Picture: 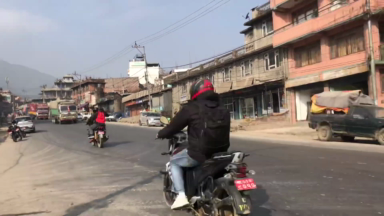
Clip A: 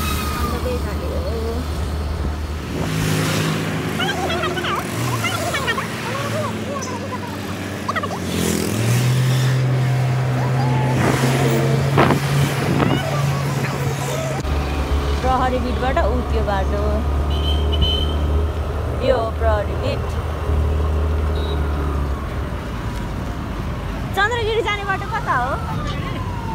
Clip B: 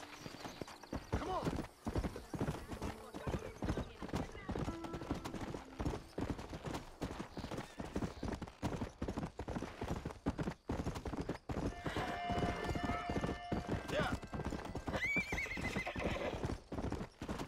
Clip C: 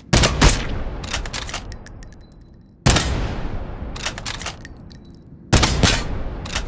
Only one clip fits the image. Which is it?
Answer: A